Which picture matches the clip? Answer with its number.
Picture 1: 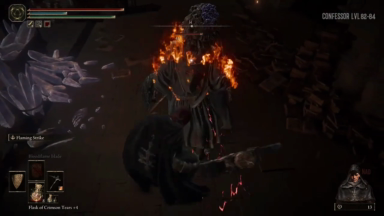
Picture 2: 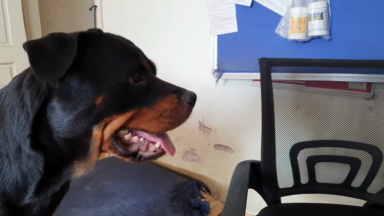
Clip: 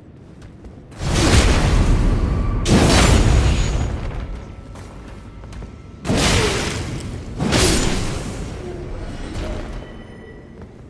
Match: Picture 1